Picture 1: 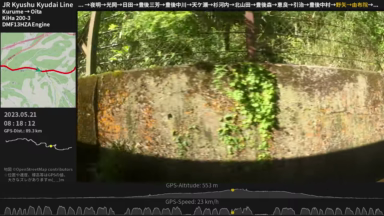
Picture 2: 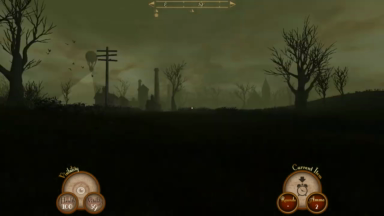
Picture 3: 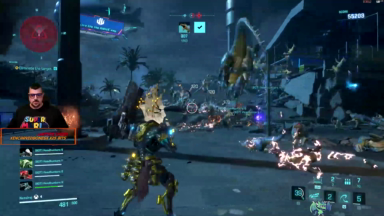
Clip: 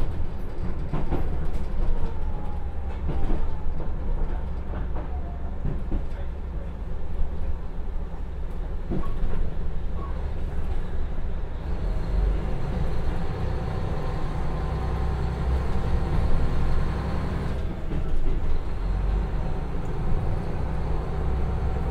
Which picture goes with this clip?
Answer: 1